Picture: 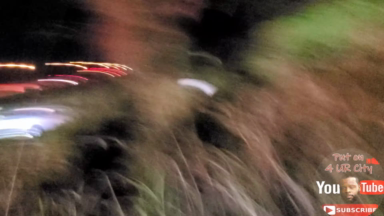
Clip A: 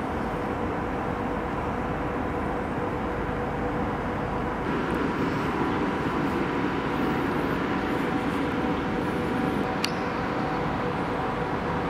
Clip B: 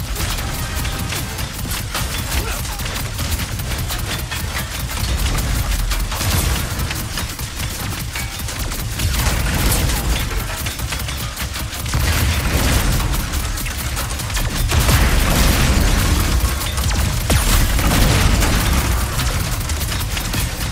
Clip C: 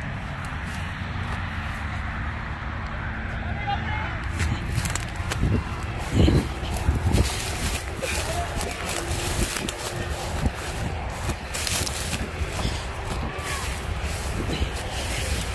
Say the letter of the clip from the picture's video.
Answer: C